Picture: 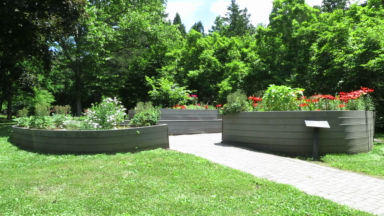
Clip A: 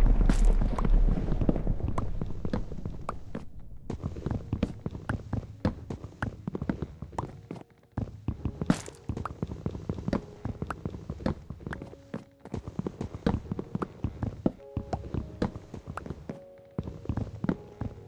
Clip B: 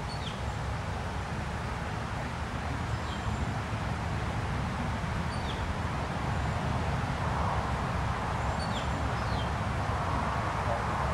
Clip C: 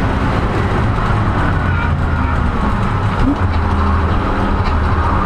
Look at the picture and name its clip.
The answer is B